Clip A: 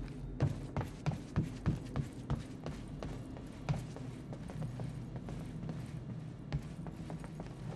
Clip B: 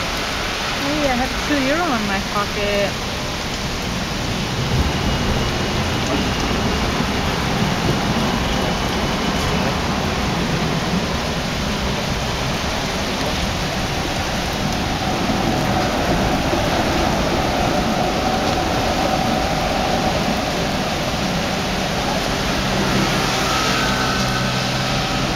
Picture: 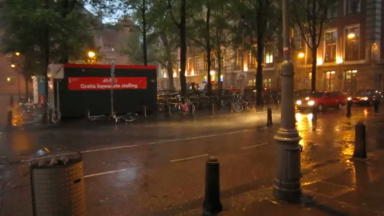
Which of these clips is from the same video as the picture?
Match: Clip B